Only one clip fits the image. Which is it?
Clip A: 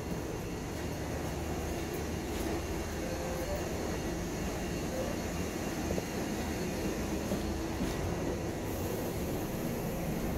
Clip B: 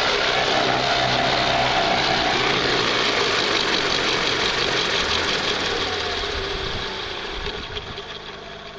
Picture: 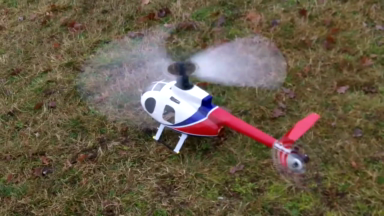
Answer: B